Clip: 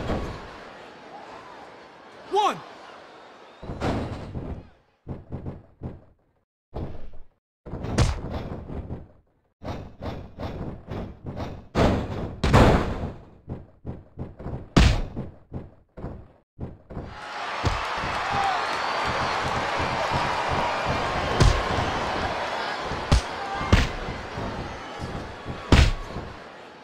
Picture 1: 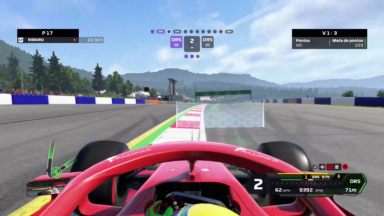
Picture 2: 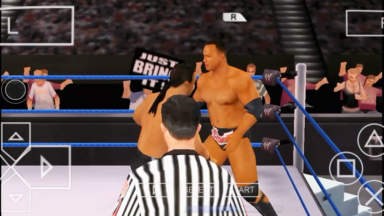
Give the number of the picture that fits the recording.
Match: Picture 2